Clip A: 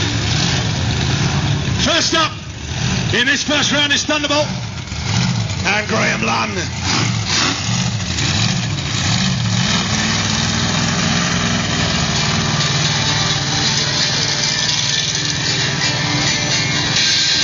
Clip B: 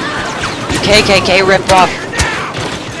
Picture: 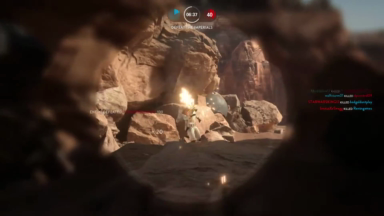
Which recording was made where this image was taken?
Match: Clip B